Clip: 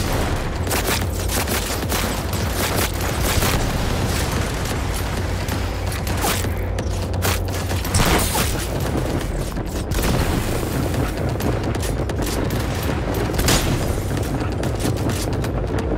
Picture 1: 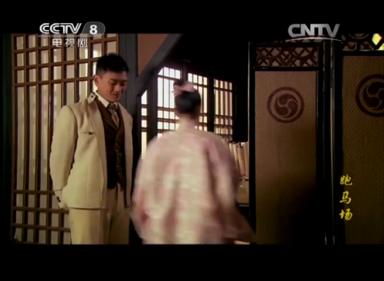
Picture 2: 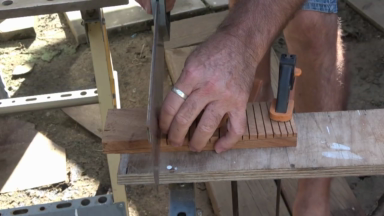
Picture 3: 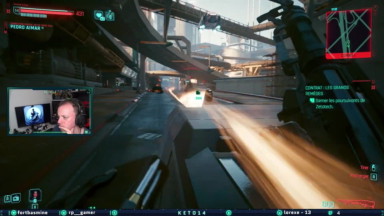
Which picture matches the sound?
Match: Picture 3